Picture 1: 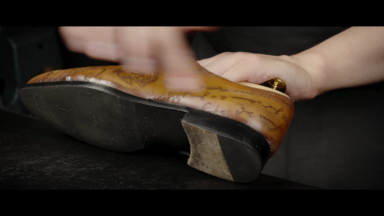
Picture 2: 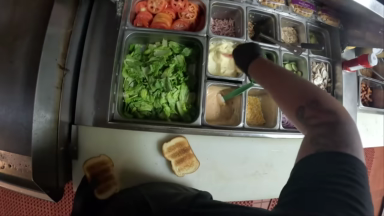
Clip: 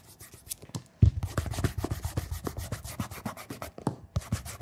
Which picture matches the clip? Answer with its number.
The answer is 1